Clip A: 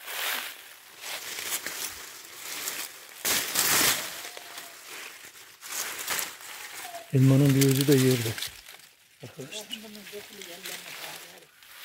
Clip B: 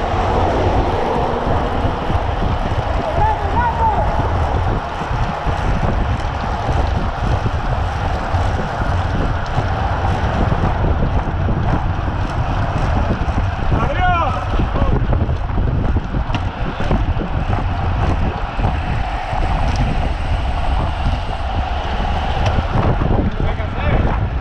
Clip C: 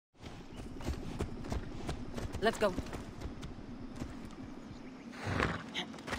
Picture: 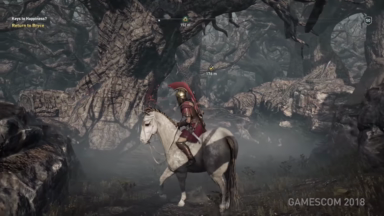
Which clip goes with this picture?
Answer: C